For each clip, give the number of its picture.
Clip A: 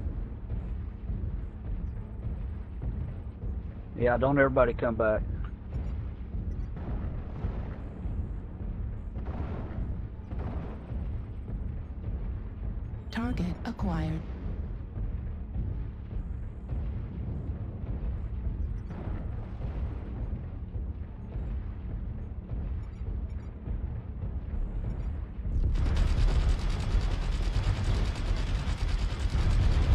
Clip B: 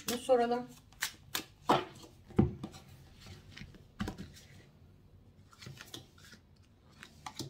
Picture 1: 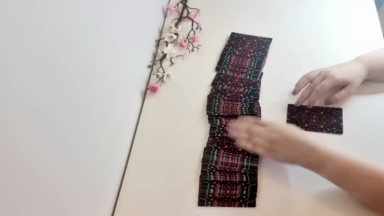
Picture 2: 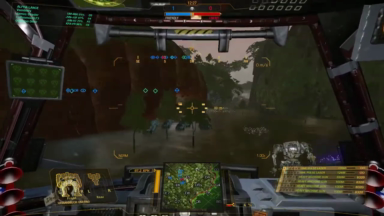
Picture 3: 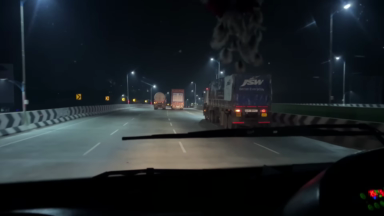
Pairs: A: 2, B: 1